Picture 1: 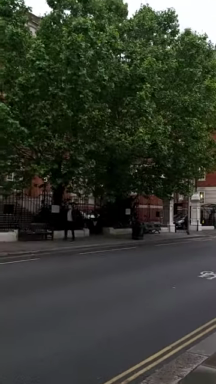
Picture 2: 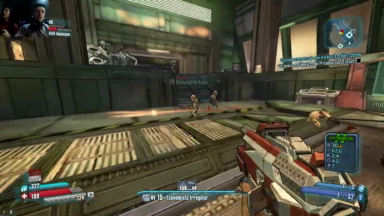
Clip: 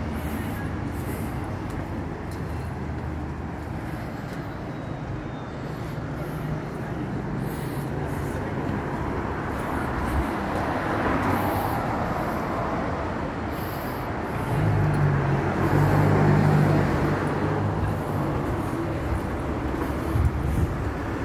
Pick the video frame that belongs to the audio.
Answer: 1